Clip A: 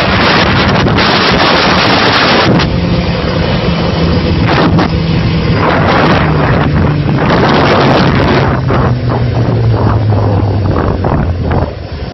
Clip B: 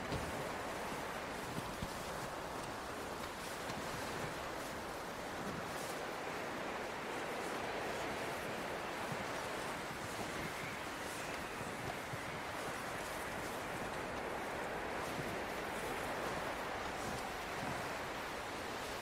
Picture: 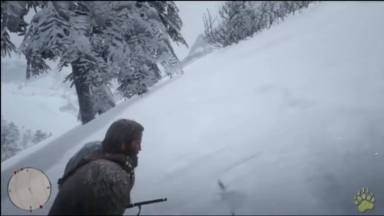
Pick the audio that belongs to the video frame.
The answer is B